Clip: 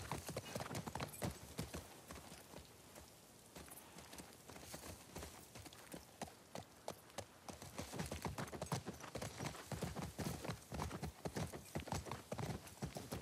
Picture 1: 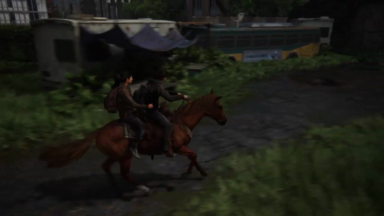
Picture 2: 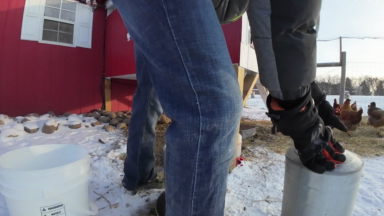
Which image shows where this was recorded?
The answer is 1